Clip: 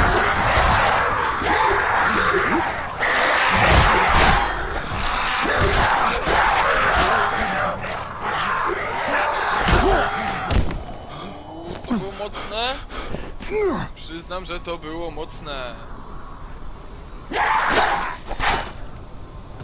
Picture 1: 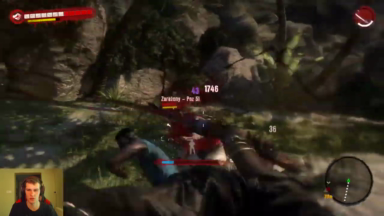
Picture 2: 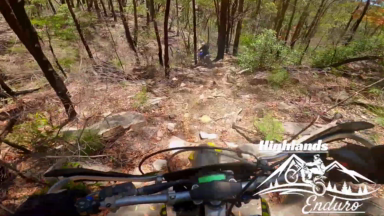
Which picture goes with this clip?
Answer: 1